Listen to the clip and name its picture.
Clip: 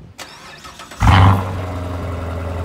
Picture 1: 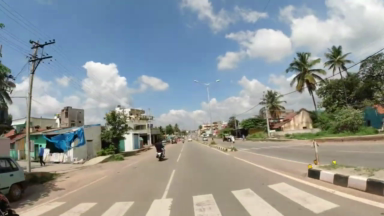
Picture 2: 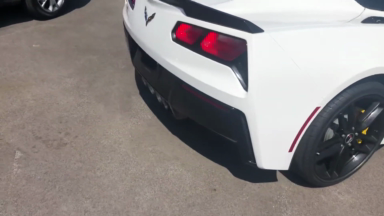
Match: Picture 2